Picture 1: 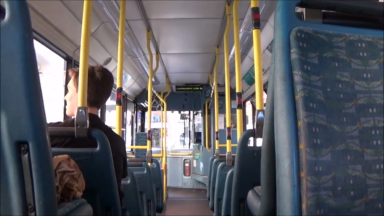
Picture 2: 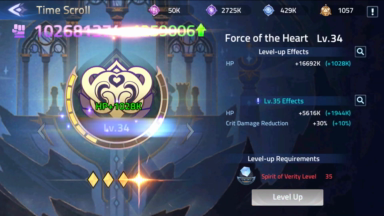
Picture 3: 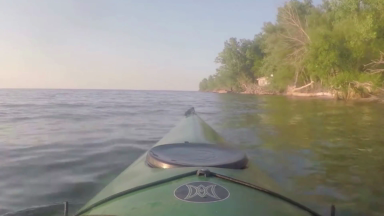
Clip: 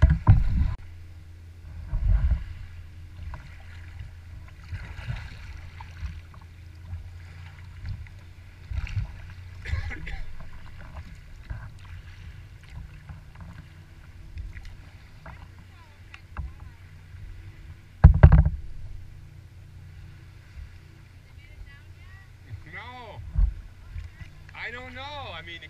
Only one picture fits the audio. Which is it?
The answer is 3